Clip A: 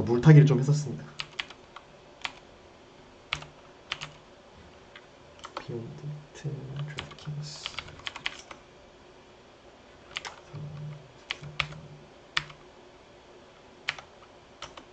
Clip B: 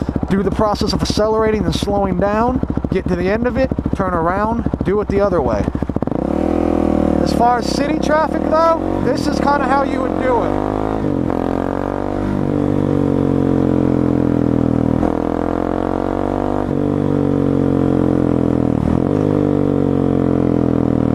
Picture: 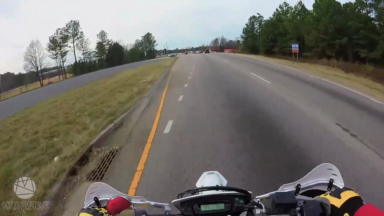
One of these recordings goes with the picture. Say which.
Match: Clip B